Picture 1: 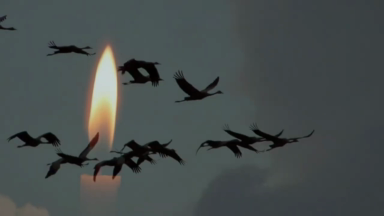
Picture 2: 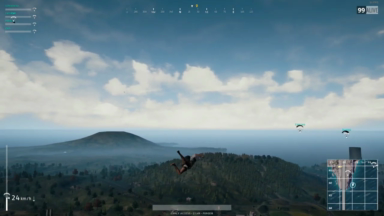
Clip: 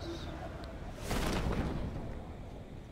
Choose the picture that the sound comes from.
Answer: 2